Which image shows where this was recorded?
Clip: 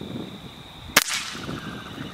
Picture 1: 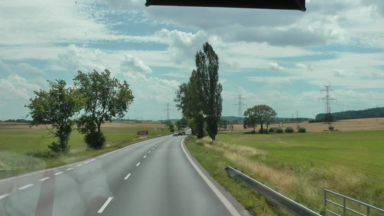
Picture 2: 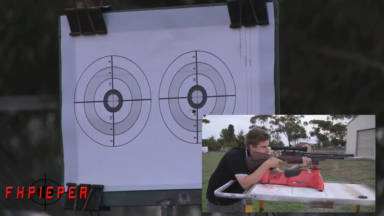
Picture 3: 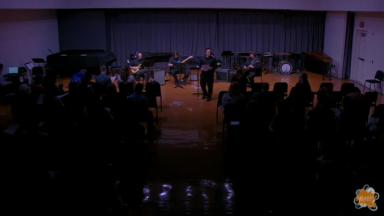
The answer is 2